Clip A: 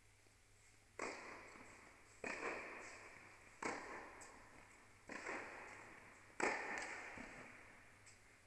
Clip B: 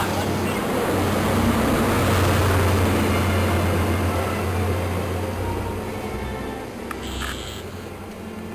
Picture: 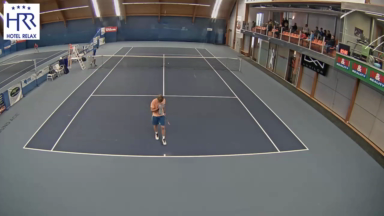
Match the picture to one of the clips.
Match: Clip A